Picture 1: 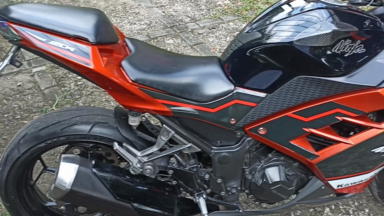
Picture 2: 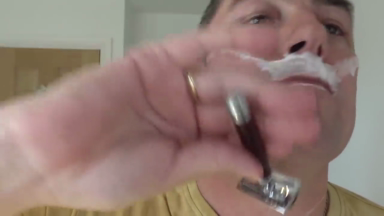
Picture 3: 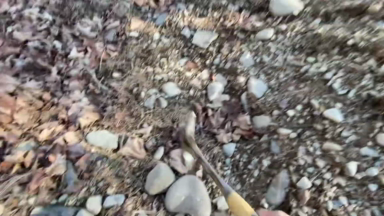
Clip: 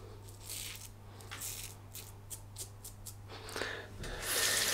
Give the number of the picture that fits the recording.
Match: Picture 2